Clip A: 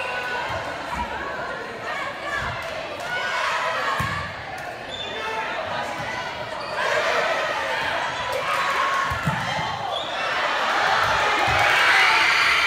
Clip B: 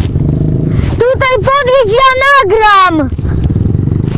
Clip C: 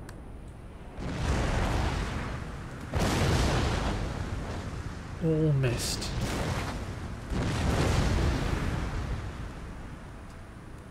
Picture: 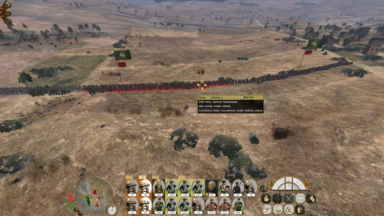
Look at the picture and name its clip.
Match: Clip C